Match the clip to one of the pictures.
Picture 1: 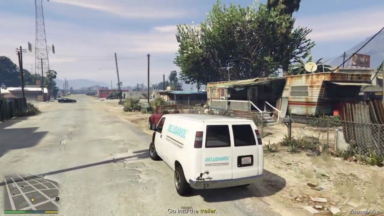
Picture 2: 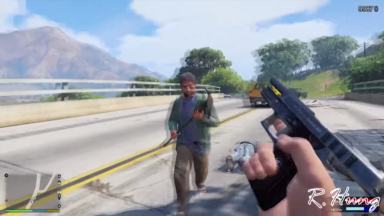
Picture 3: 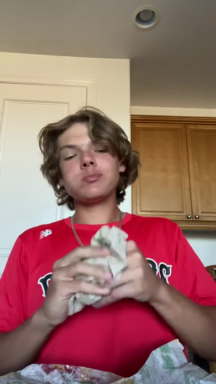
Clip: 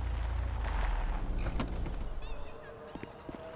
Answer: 1